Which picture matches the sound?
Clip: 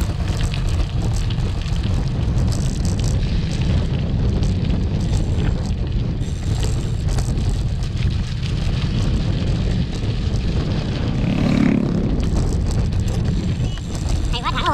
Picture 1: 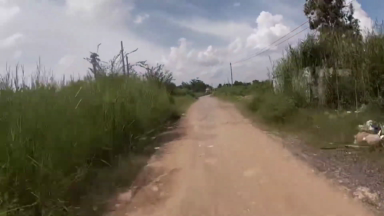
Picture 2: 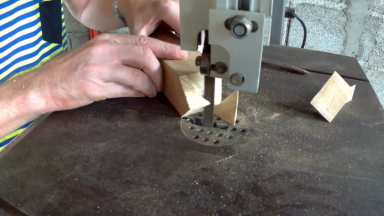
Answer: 1